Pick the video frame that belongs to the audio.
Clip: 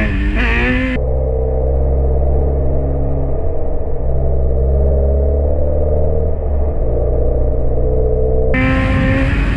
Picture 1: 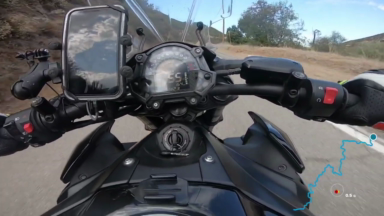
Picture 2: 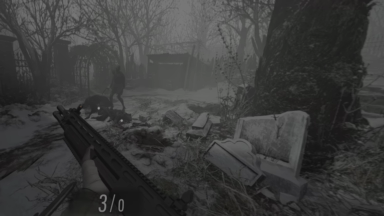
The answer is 1